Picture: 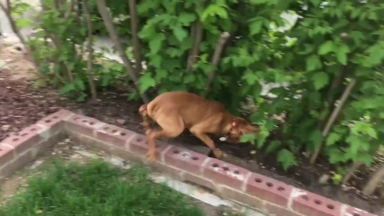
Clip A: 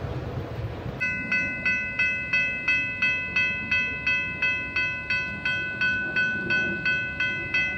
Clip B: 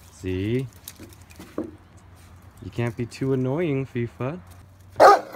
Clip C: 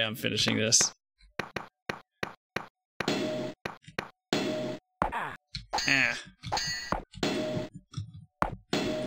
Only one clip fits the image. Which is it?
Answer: B